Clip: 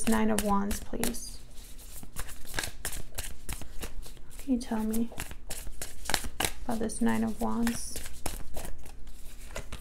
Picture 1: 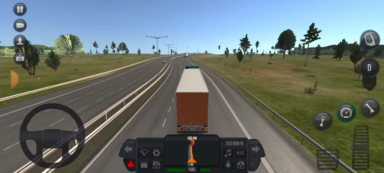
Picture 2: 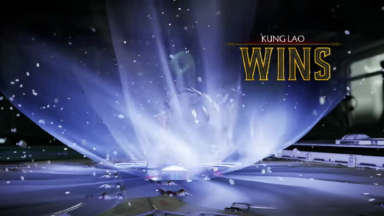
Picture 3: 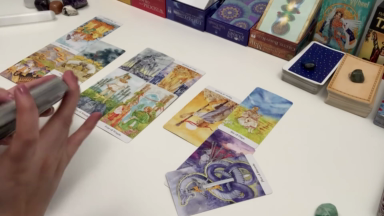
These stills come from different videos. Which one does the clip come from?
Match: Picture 3